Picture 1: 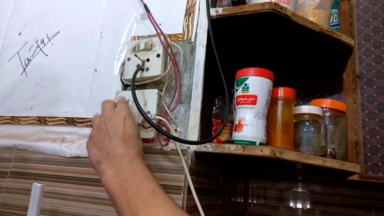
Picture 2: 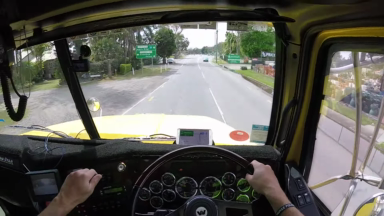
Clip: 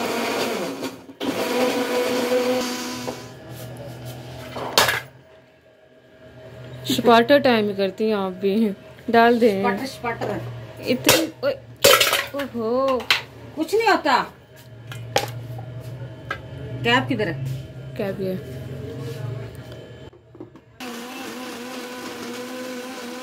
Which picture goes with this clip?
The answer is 1